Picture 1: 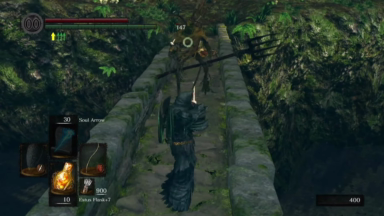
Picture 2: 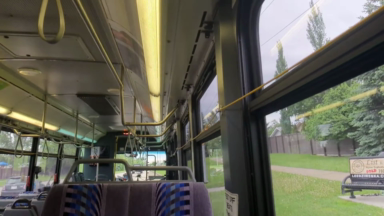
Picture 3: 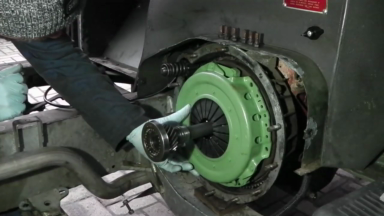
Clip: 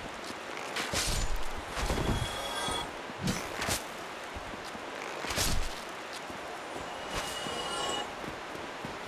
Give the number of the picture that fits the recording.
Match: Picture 1